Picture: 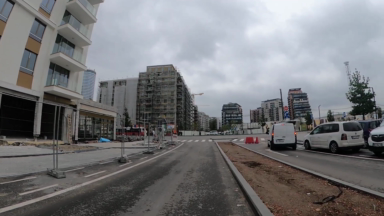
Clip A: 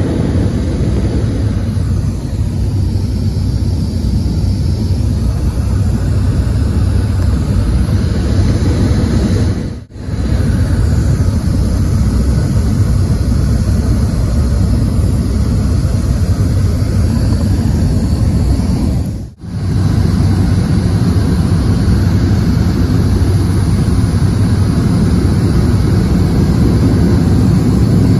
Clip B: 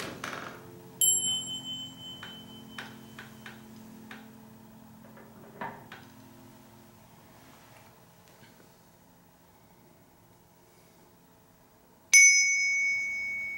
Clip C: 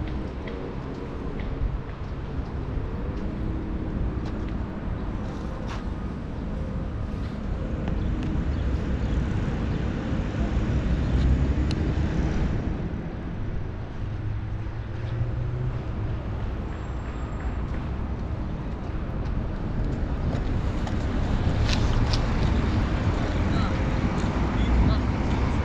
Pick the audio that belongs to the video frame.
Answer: C